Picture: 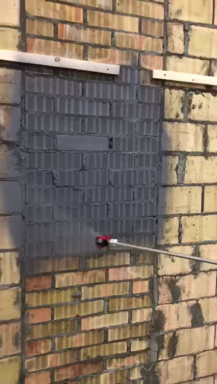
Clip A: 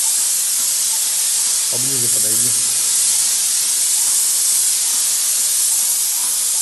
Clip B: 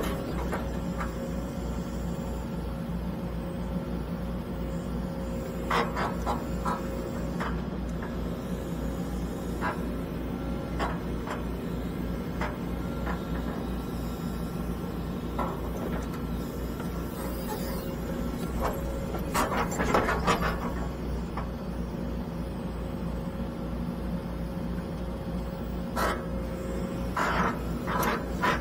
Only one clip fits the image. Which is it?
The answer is A